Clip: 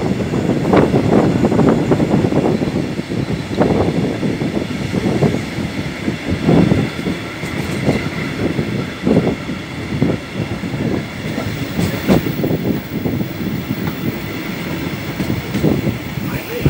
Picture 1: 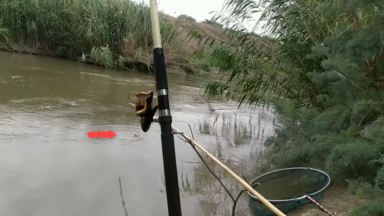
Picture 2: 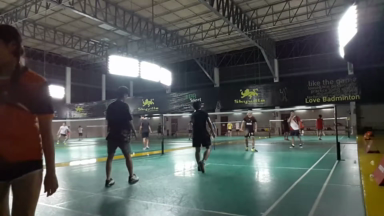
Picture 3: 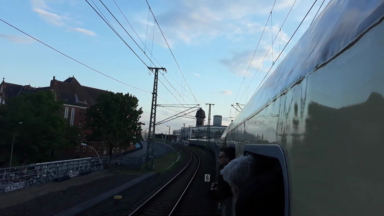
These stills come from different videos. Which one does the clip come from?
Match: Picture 3